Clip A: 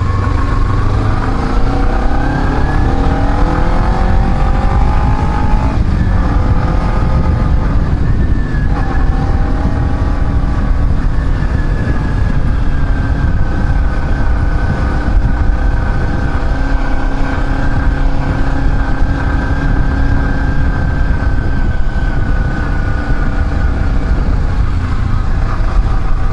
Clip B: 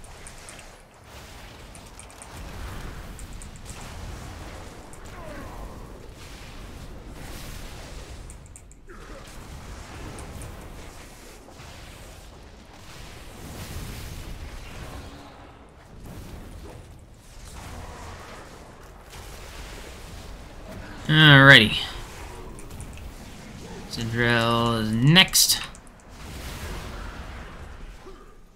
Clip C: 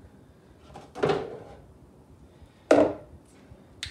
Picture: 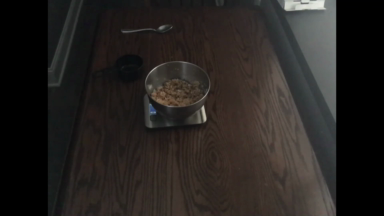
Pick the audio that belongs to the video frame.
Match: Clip C